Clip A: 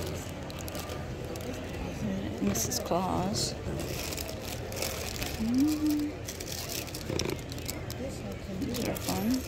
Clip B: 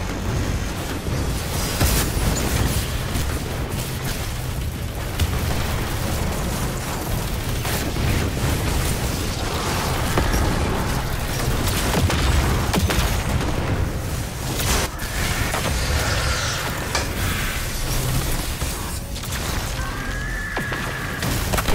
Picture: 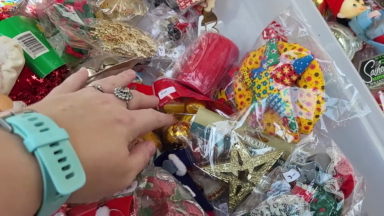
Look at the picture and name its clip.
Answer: A